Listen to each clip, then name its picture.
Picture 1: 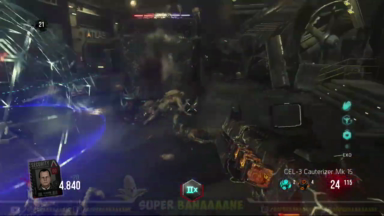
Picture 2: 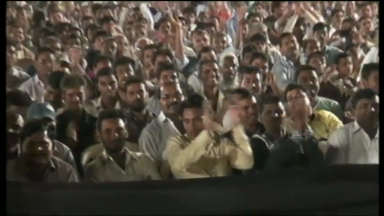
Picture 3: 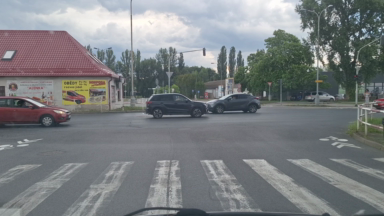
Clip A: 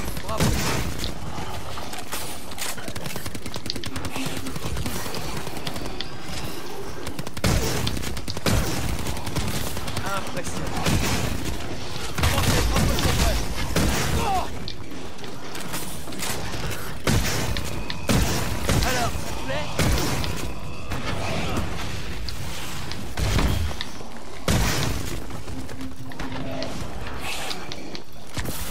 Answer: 1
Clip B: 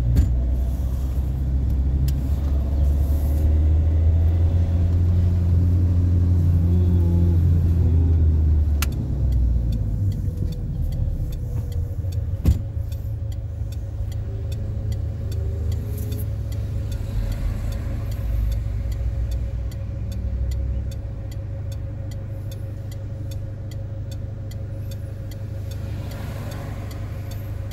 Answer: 3